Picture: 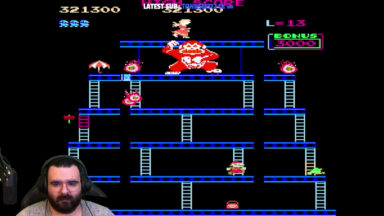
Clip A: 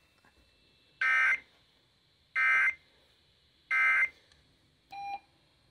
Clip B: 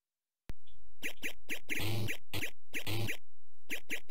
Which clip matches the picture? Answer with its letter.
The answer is B